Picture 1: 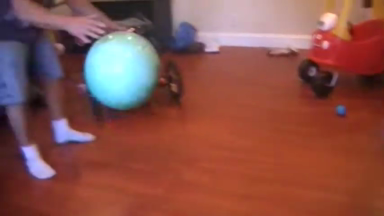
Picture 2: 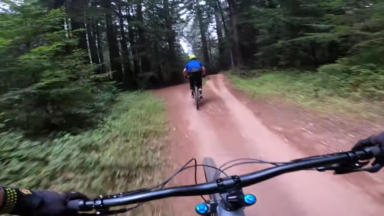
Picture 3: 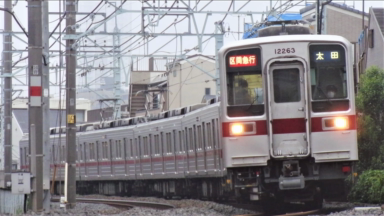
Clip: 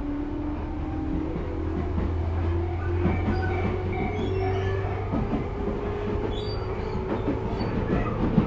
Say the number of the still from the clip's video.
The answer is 3